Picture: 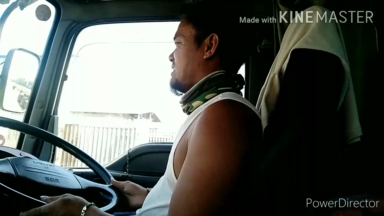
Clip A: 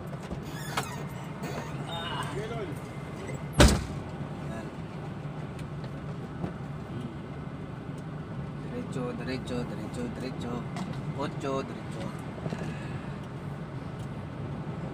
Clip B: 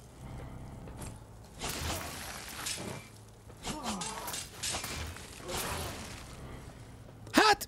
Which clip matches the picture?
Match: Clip A